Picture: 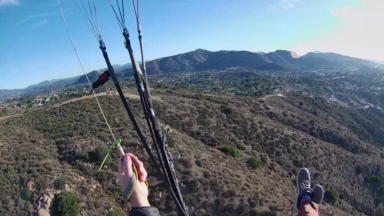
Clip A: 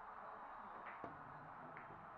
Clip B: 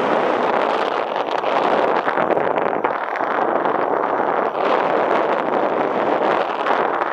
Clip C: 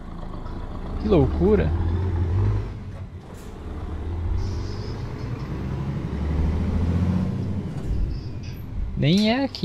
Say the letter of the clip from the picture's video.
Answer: B